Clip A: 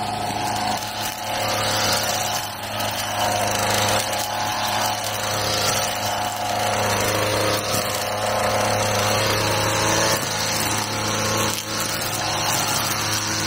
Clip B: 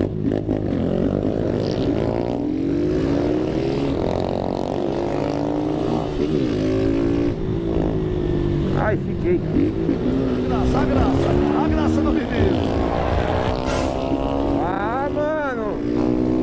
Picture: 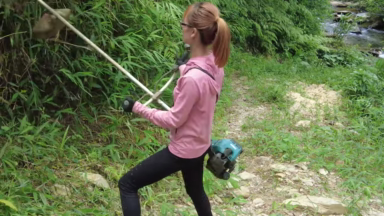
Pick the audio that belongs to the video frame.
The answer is A